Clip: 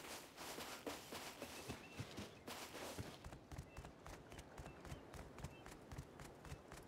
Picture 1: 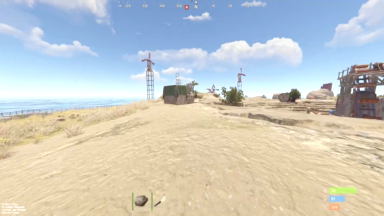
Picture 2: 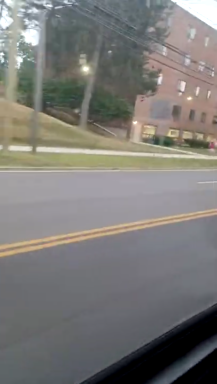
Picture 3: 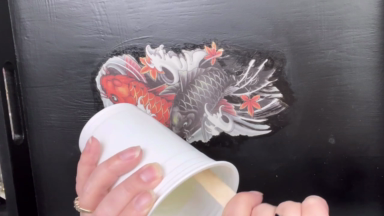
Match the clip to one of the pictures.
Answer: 1